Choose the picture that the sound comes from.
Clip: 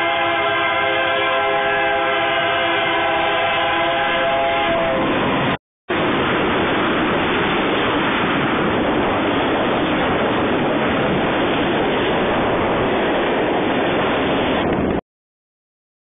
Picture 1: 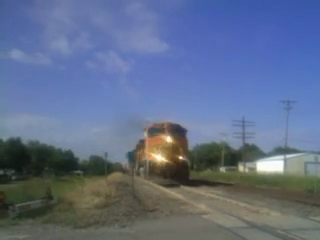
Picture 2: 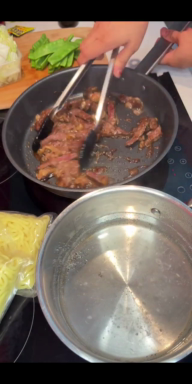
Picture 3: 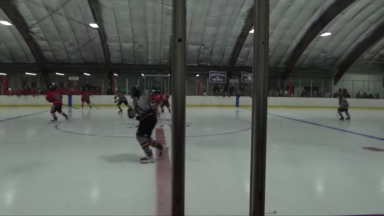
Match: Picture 1